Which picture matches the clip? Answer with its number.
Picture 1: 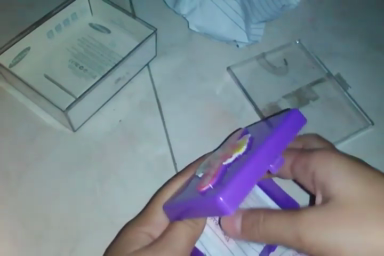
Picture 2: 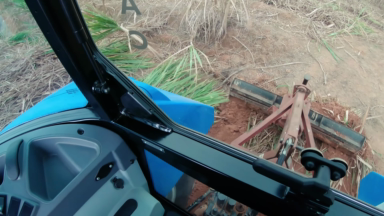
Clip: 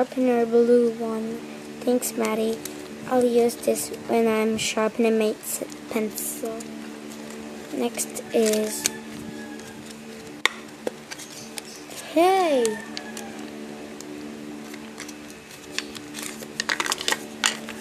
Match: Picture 1